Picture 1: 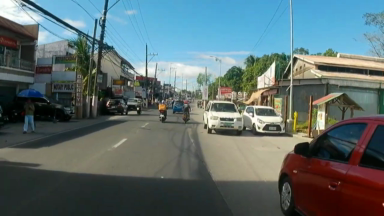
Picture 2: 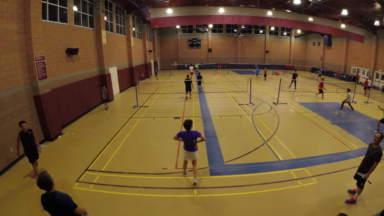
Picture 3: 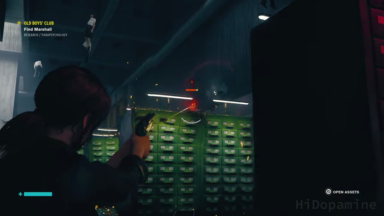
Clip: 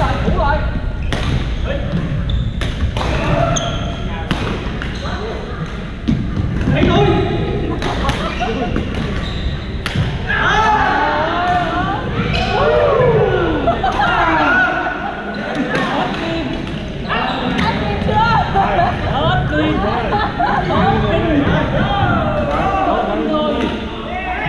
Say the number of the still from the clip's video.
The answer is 2